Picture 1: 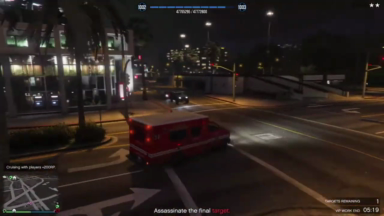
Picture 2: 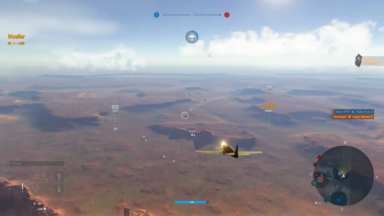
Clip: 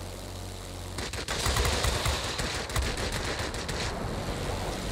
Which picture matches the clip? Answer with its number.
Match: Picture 2